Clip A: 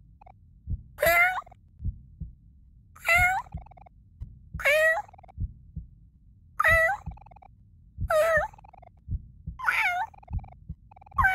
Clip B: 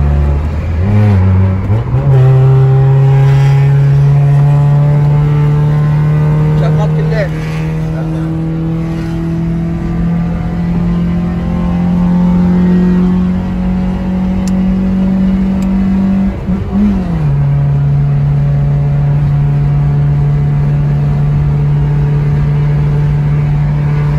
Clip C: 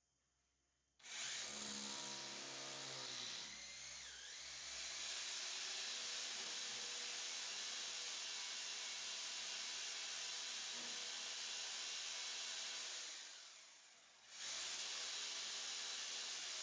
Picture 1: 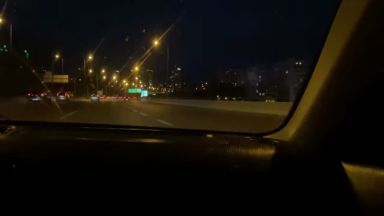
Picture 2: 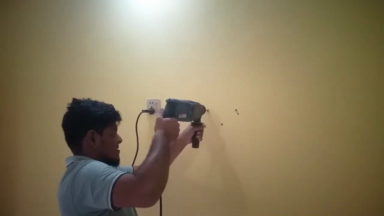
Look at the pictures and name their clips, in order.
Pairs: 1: B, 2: C